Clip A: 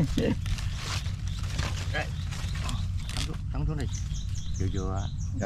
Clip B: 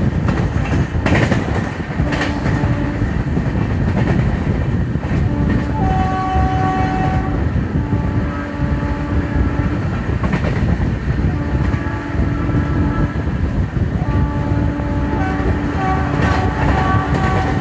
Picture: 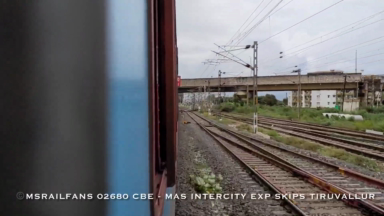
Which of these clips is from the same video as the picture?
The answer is B